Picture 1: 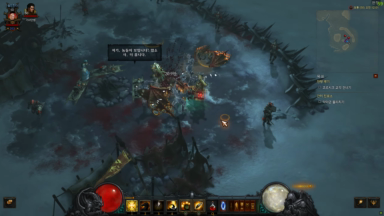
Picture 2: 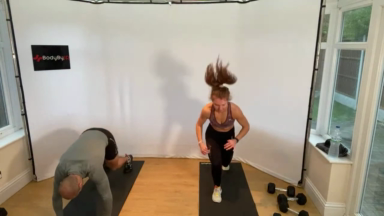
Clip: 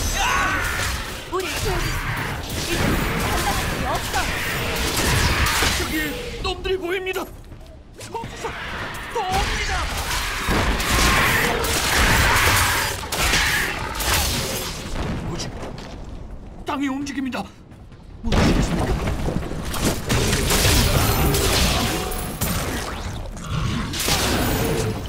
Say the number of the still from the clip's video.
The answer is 1